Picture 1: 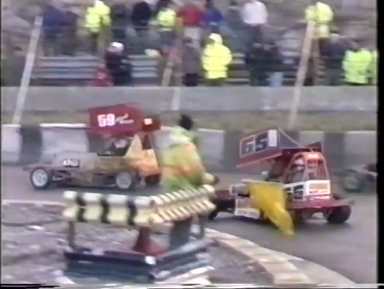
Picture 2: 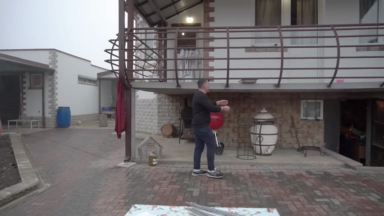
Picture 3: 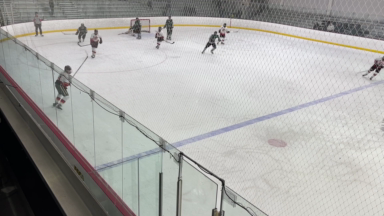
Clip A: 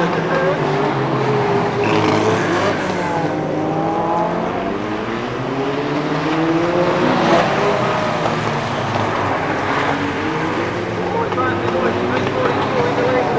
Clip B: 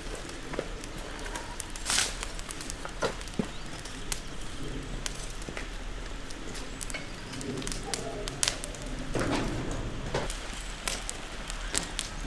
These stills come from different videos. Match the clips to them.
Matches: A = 1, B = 2